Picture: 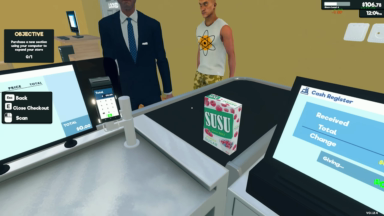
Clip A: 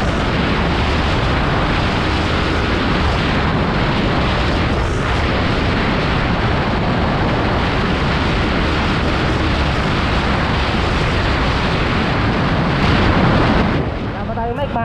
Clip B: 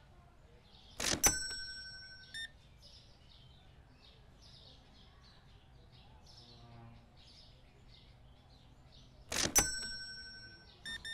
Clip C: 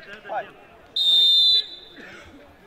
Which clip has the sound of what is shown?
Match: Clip B